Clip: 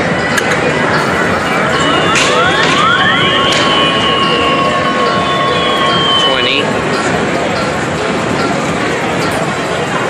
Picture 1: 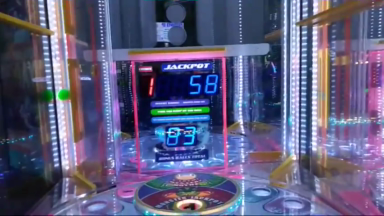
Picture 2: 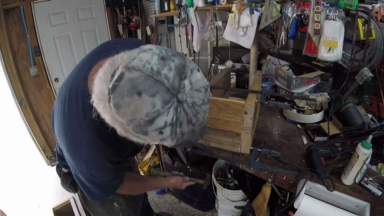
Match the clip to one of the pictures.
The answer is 1